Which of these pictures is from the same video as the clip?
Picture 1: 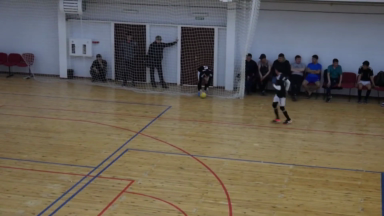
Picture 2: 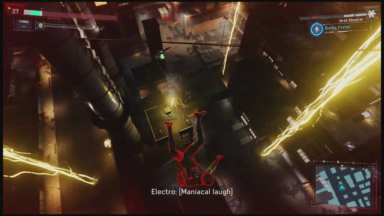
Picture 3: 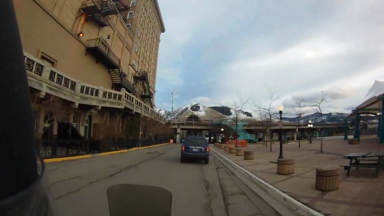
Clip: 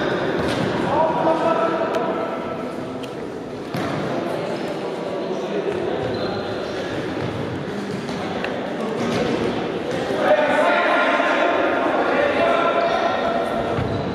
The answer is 1